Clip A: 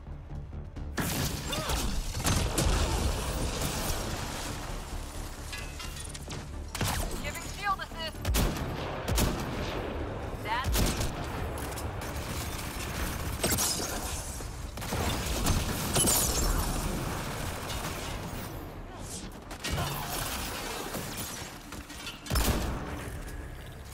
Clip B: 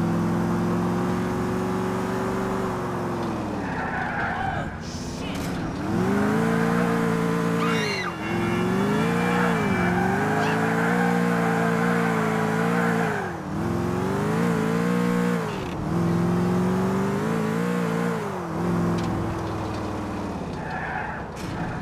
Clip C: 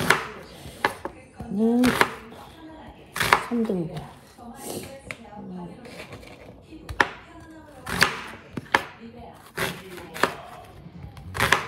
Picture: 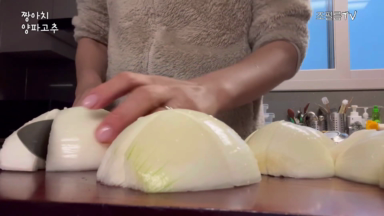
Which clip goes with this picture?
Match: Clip C